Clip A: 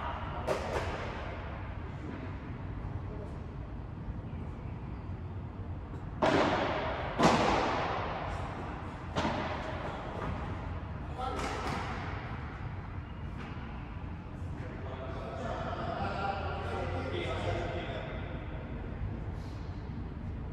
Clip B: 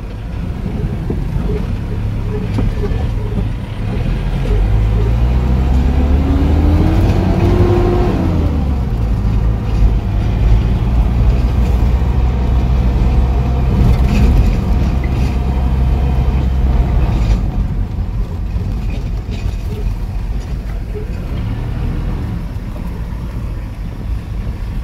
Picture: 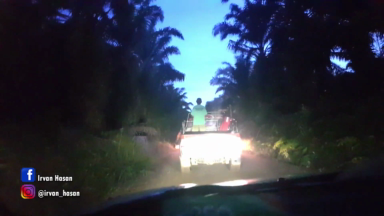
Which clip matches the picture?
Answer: B